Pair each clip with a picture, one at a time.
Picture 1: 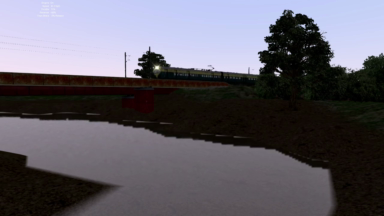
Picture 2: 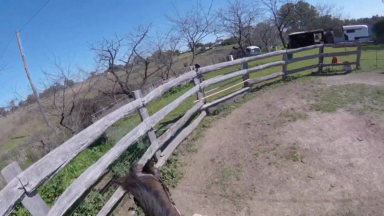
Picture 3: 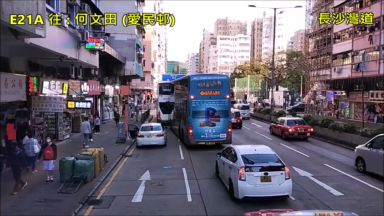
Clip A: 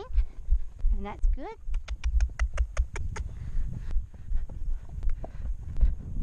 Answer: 2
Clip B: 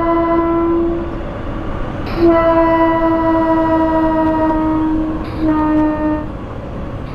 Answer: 1